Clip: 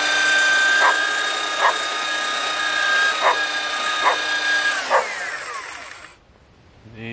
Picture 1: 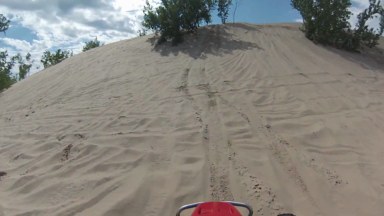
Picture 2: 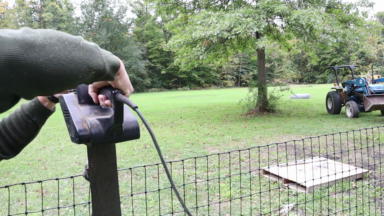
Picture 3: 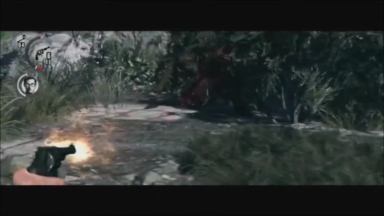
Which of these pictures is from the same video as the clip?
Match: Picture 2